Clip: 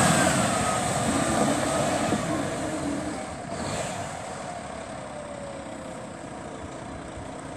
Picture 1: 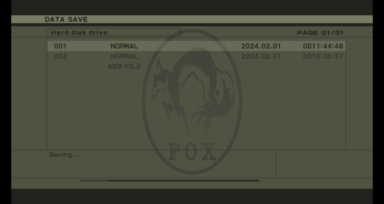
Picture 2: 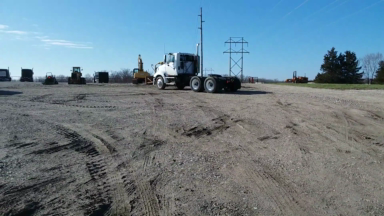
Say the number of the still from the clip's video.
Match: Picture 2